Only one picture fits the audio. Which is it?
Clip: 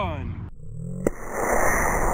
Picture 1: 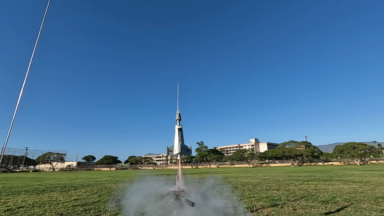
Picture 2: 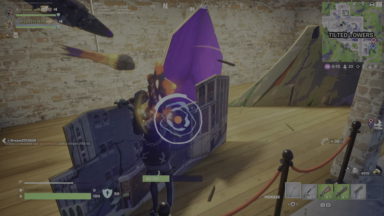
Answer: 1